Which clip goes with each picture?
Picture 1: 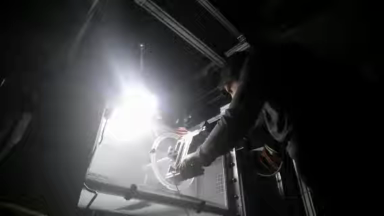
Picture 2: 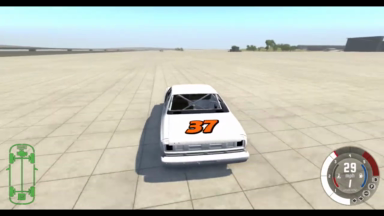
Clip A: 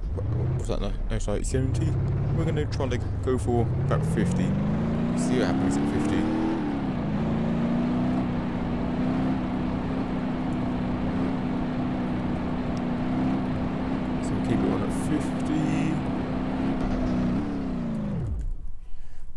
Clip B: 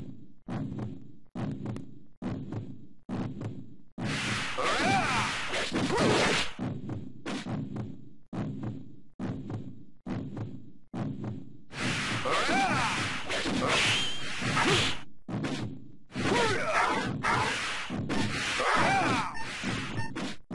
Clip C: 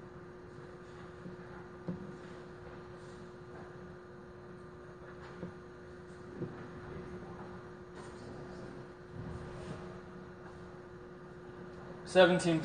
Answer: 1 C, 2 A